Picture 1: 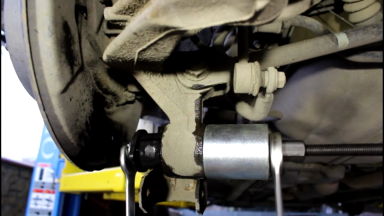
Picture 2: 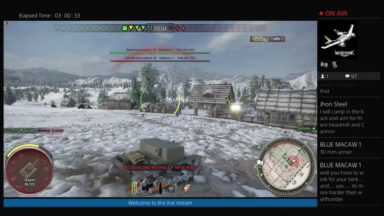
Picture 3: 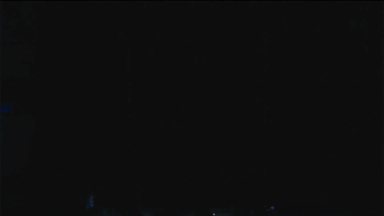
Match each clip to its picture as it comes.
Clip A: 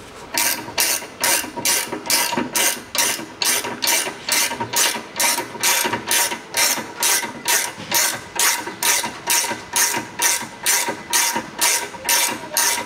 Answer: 1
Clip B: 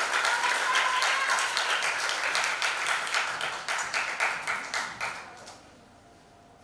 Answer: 3